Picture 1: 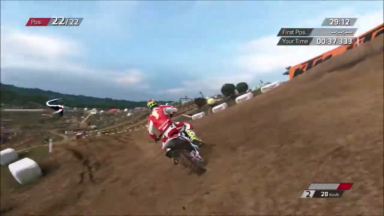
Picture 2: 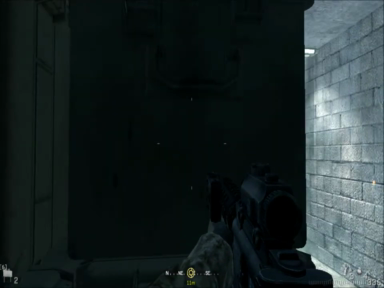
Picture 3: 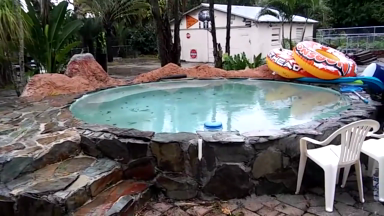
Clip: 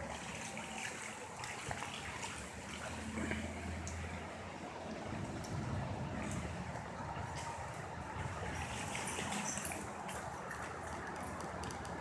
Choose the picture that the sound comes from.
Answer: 3